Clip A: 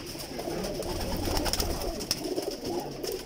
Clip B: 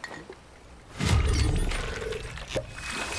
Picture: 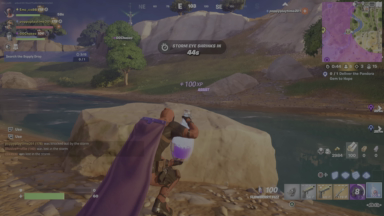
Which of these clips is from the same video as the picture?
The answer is B